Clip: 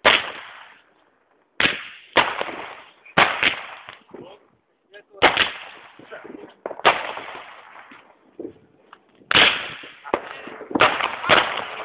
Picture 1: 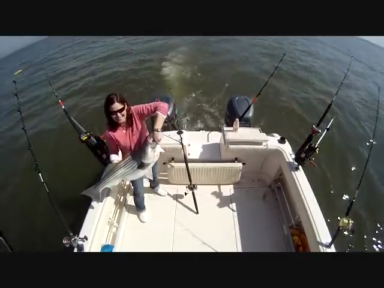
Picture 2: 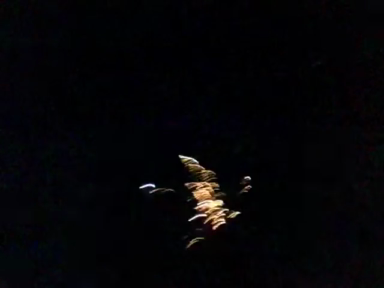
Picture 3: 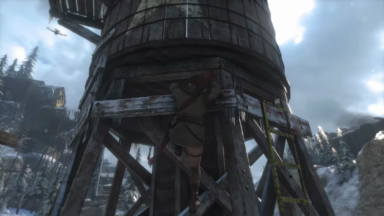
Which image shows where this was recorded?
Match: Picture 2